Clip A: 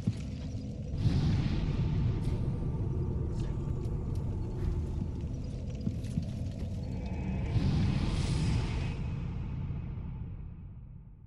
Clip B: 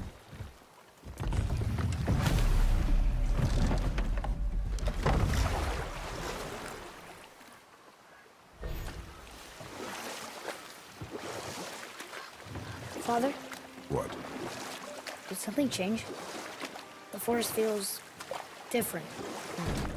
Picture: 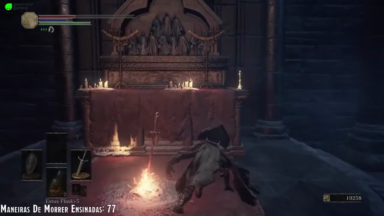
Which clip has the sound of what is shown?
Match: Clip A